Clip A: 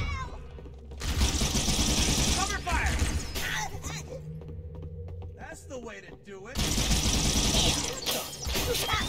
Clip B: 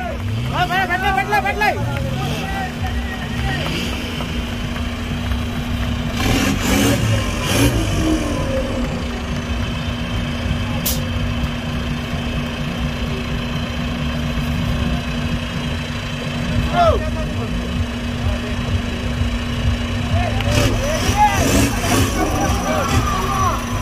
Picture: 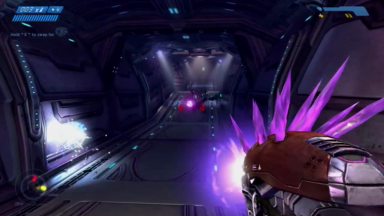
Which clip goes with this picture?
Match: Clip A